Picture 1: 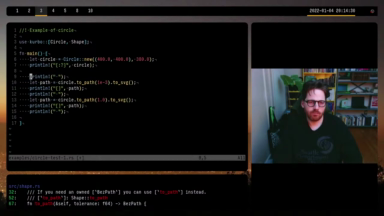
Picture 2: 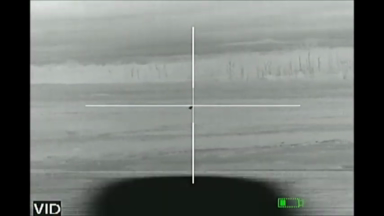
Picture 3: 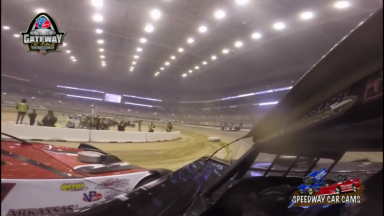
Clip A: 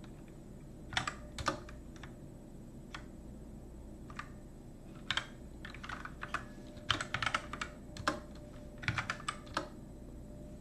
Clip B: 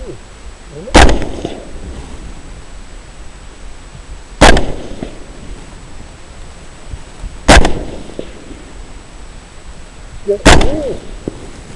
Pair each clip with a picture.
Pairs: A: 1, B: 2